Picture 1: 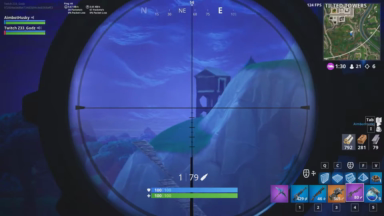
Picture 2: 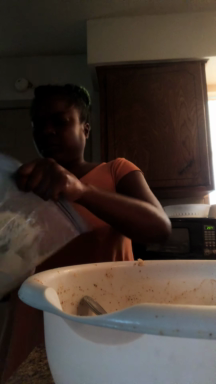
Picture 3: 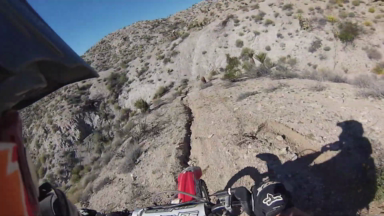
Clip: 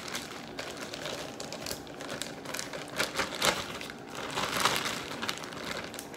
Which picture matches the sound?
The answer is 2